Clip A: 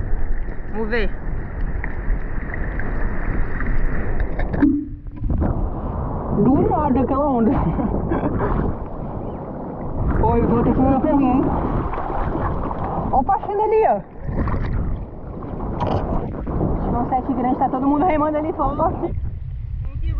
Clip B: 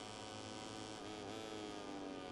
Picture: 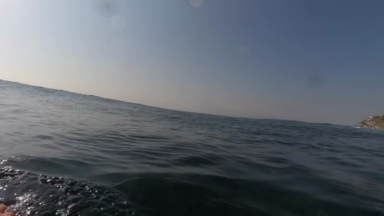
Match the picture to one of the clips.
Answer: A